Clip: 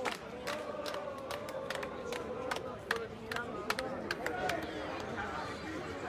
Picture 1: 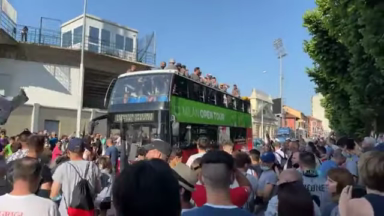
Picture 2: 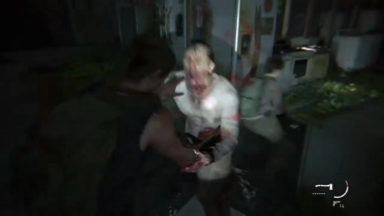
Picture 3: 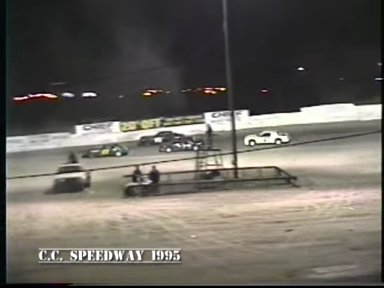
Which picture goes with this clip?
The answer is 1